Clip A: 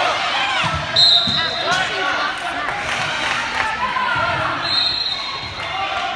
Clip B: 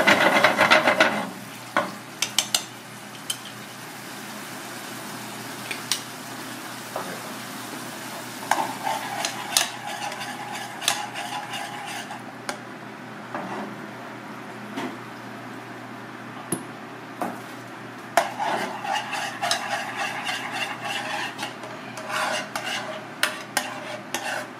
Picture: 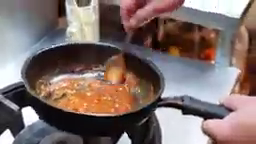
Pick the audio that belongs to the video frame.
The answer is B